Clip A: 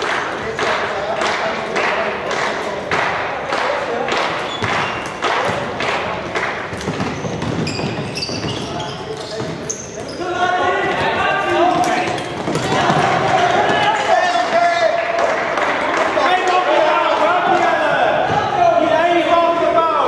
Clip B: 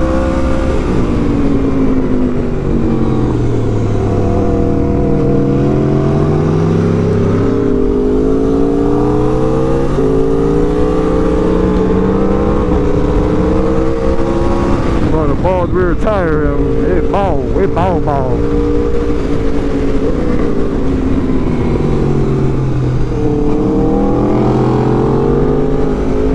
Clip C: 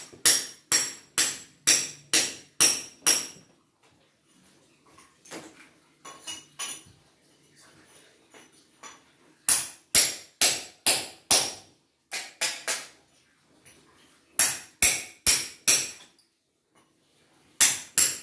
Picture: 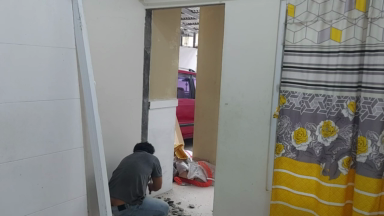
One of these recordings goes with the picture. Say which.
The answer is C